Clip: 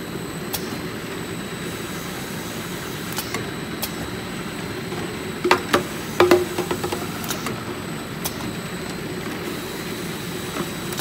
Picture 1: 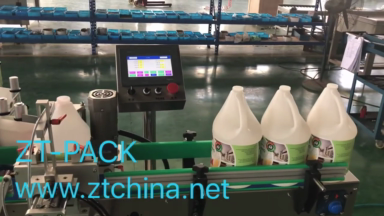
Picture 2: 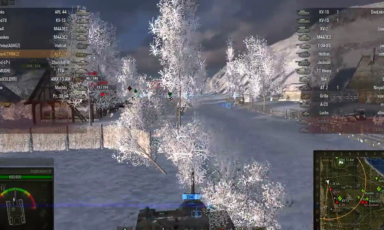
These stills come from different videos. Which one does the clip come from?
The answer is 1